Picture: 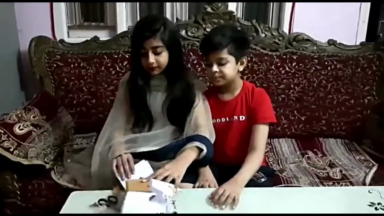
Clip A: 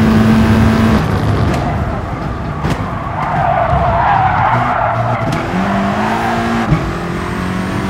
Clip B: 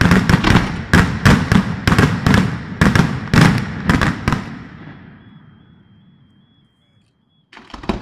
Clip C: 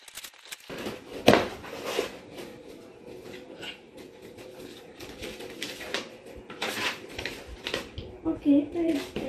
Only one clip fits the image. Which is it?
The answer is C